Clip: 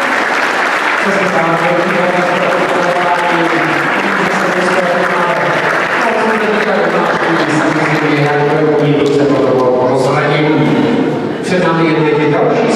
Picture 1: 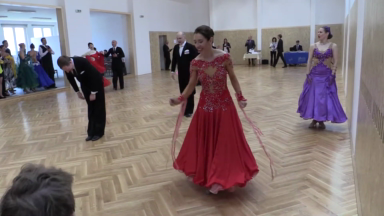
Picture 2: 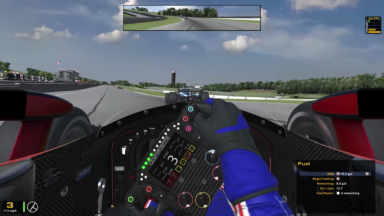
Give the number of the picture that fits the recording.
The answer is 1